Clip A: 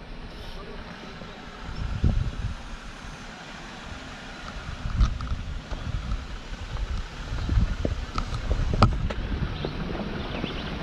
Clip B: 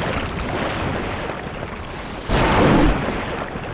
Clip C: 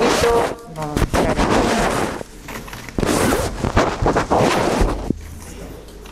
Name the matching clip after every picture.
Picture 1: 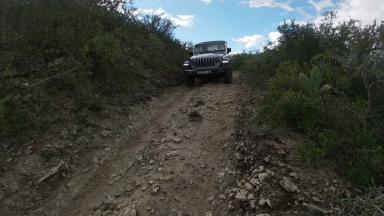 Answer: A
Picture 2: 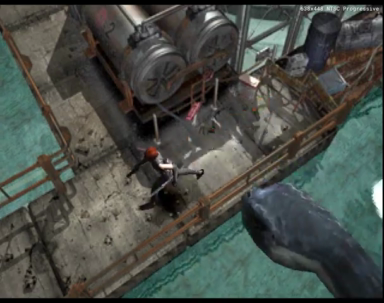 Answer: B